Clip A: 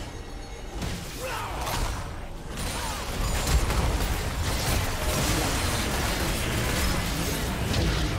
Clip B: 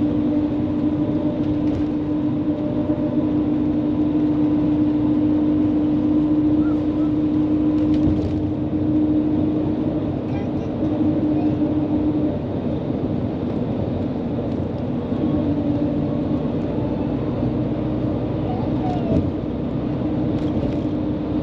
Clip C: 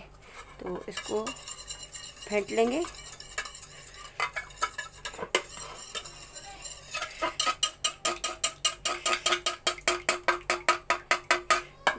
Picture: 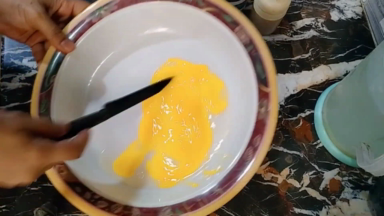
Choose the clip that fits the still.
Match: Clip C